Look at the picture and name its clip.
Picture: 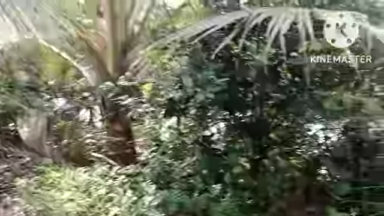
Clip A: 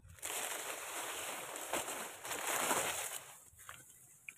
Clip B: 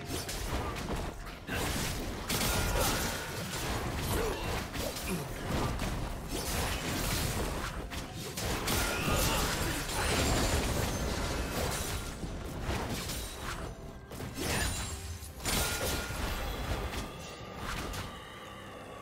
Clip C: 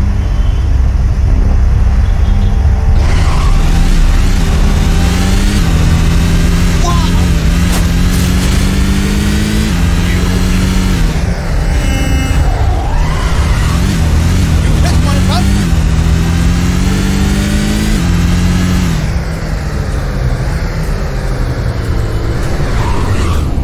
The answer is A